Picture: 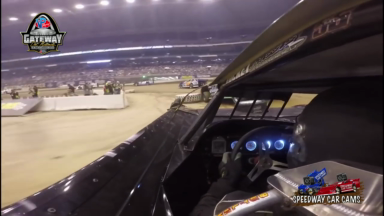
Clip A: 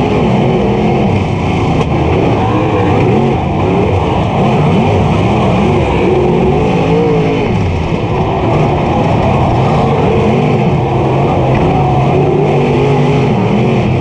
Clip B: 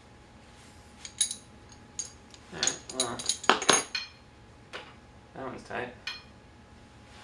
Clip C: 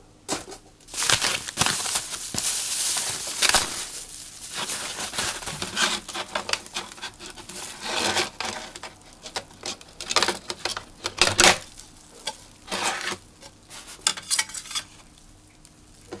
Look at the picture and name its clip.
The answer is A